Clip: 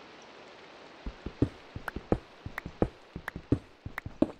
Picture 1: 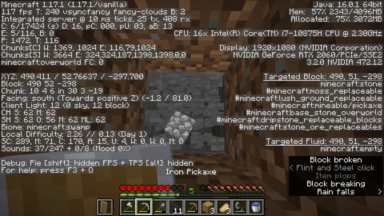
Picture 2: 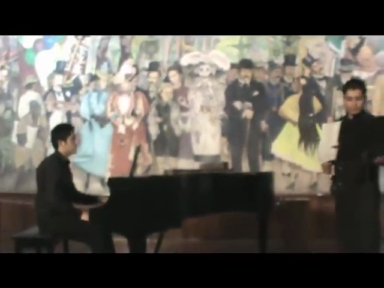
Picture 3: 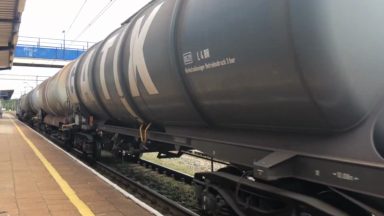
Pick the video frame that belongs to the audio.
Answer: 1